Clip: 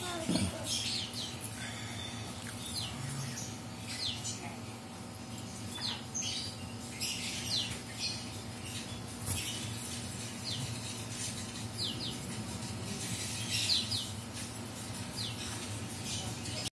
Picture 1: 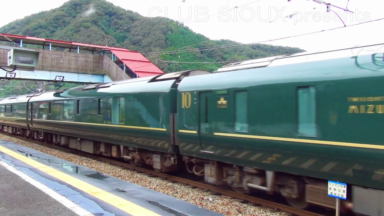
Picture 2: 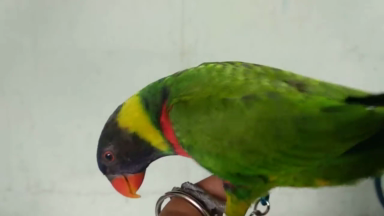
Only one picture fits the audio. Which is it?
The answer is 2